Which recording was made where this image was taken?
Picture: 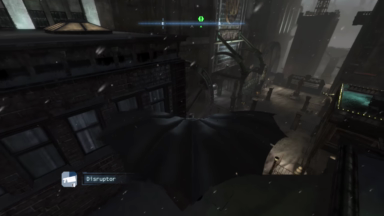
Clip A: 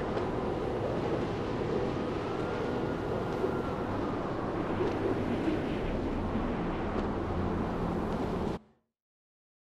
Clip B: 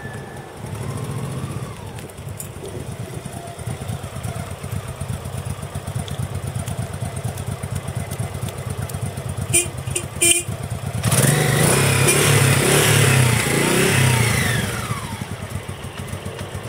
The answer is A